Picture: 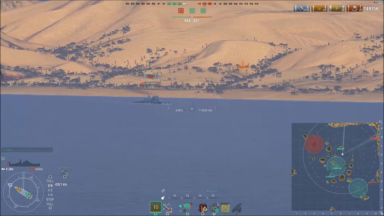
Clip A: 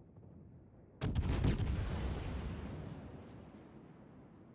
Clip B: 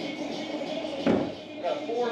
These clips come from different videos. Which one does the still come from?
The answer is A